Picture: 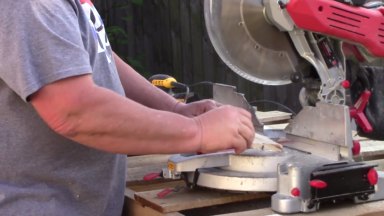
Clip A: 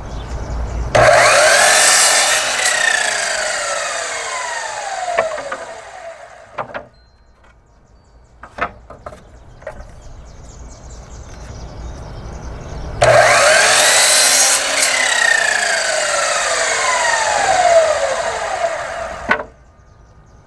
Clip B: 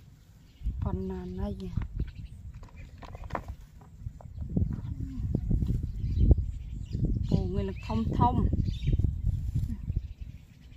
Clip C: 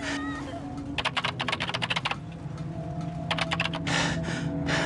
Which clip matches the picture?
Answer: A